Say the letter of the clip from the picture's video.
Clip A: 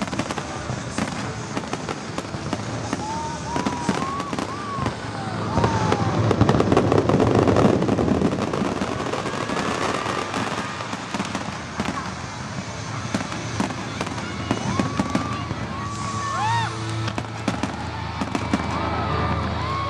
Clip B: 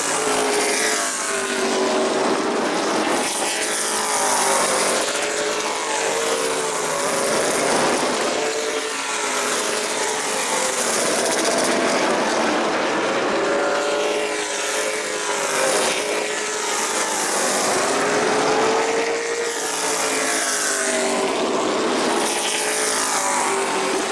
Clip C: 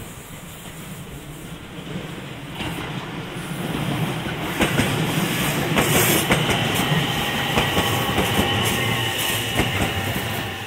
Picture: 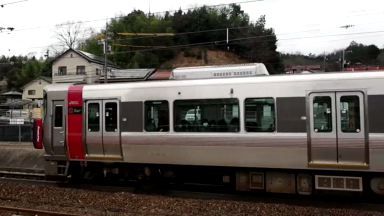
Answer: C